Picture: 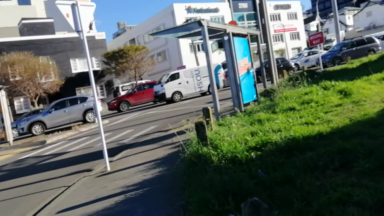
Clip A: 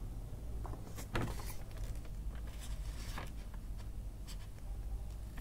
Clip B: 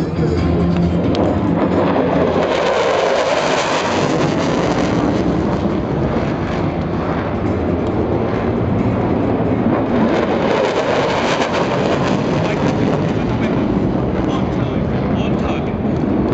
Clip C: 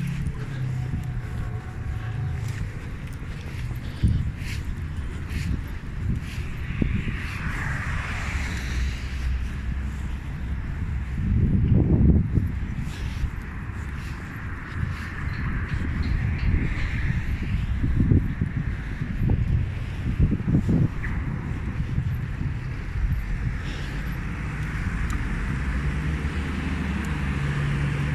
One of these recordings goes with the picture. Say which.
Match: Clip C